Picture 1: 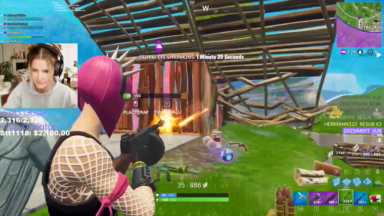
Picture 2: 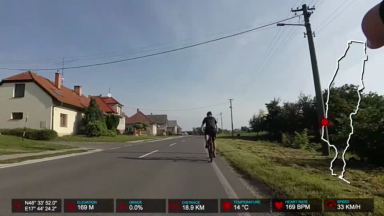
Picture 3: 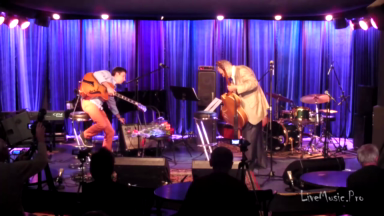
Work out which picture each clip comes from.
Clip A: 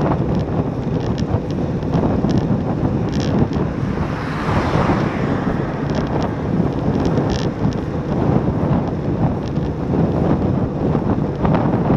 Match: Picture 2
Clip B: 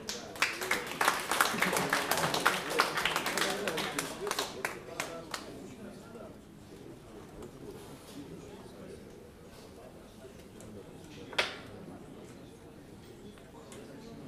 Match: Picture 3